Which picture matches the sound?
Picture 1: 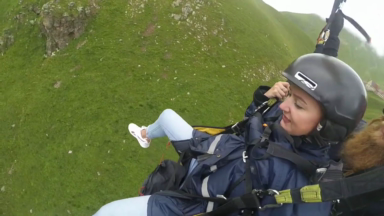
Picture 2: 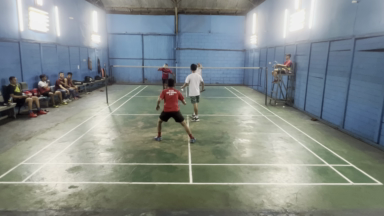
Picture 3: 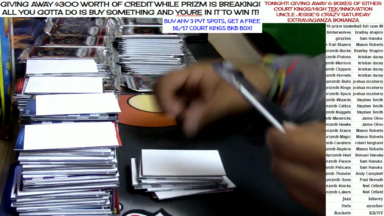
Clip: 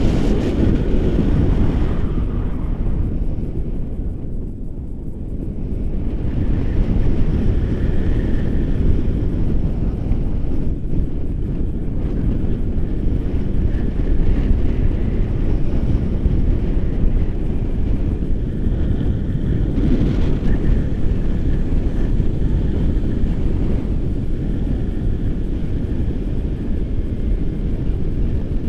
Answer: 1